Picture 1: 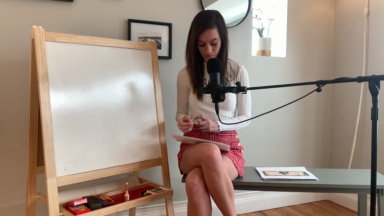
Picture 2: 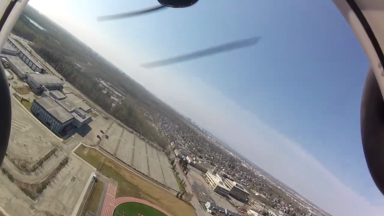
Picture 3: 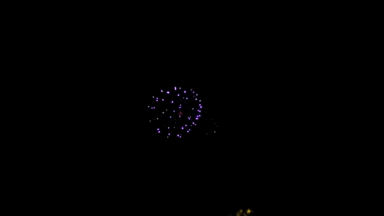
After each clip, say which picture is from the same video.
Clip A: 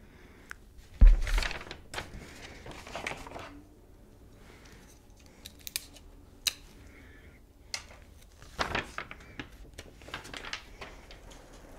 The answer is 1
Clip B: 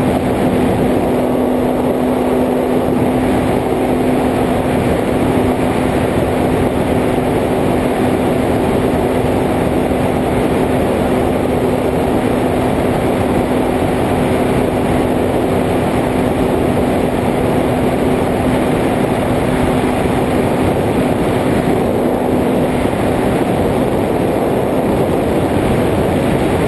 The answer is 2